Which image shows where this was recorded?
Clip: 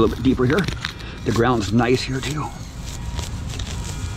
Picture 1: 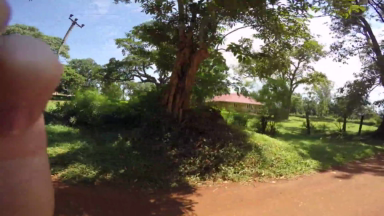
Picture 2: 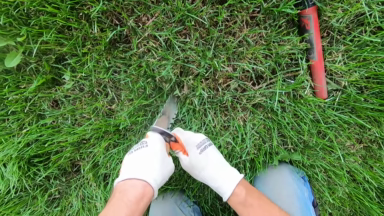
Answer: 2